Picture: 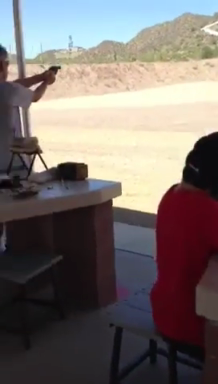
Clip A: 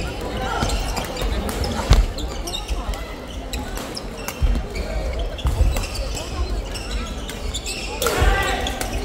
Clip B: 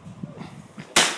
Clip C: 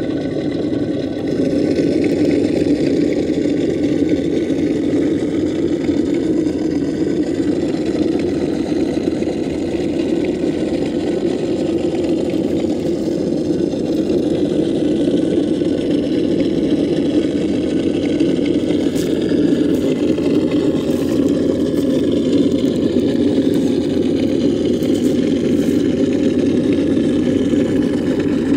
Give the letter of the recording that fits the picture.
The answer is B